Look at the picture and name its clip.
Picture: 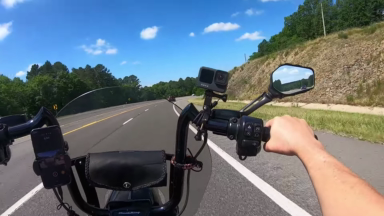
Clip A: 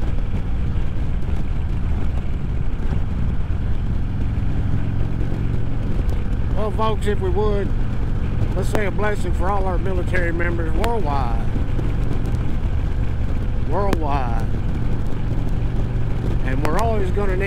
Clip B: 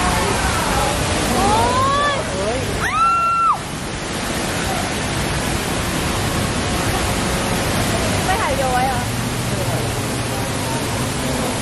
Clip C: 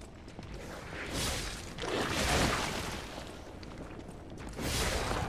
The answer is A